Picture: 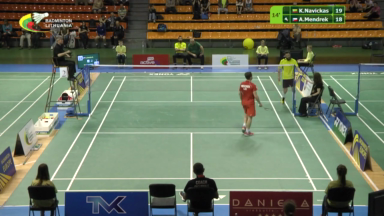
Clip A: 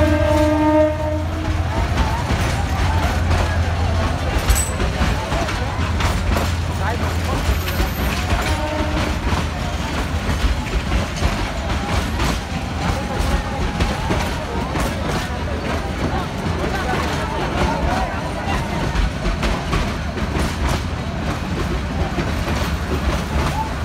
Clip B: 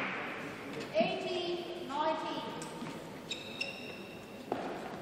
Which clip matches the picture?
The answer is B